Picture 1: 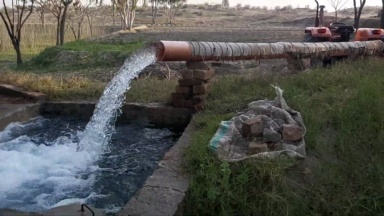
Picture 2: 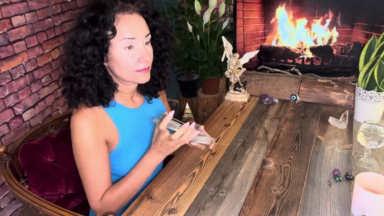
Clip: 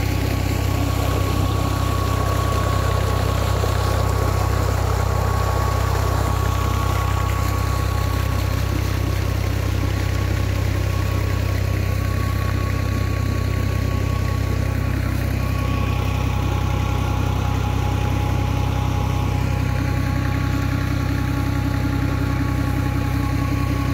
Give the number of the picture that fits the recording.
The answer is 1